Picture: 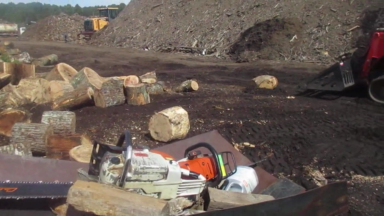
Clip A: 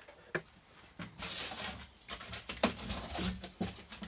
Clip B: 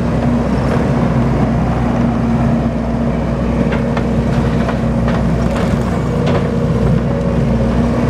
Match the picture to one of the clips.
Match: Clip B